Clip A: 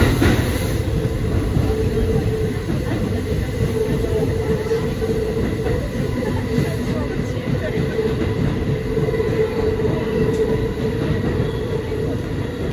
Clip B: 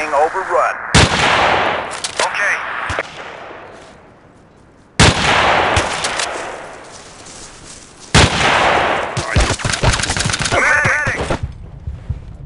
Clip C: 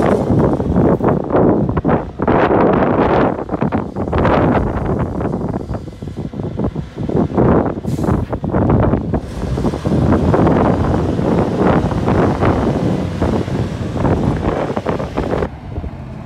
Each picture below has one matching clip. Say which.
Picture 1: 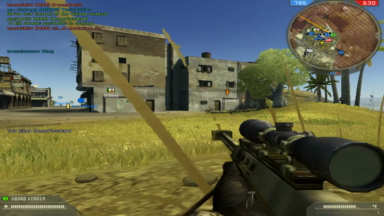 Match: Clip B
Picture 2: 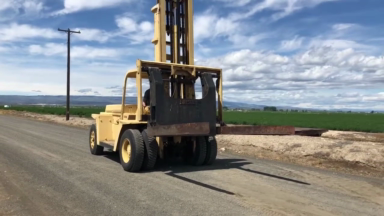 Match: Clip C